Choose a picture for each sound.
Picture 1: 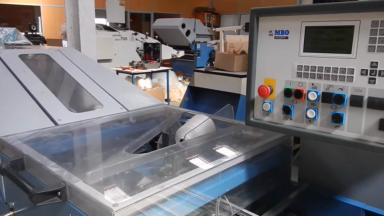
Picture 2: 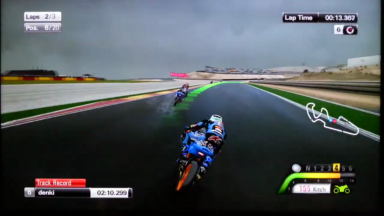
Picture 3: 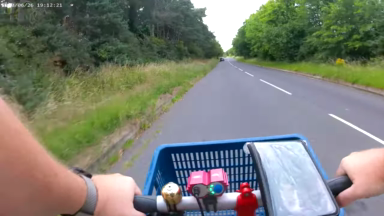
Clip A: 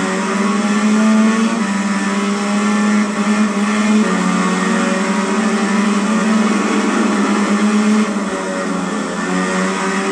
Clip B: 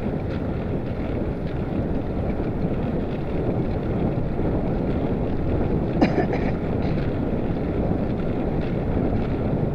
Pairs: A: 2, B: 3